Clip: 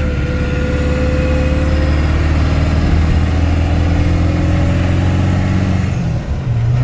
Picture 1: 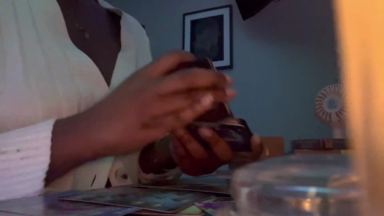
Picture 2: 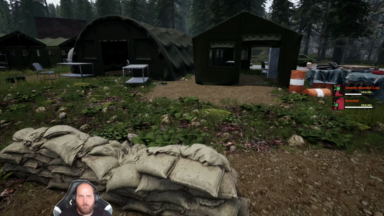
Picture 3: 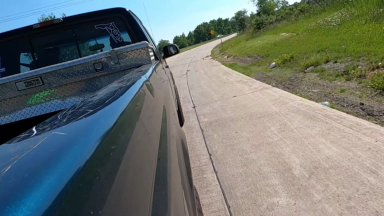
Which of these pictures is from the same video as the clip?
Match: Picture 3